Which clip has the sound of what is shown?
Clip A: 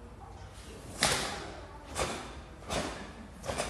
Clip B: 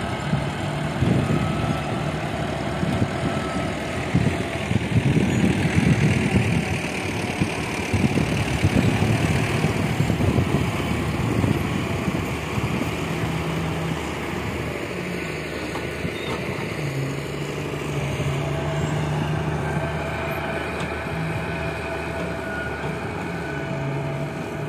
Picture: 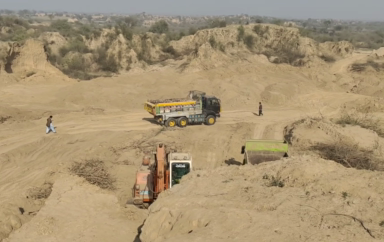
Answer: B